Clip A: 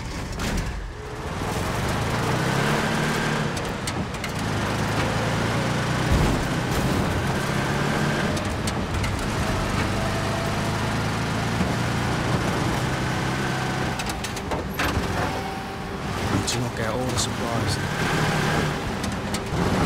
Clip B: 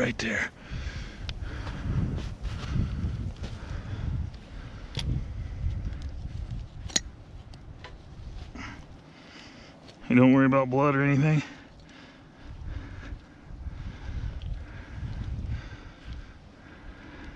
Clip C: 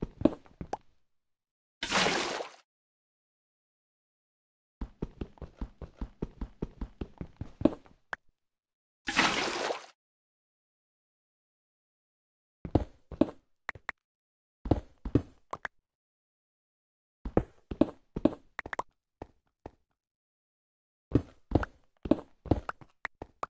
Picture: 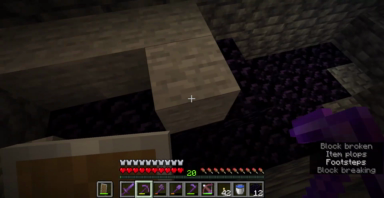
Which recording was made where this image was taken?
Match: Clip C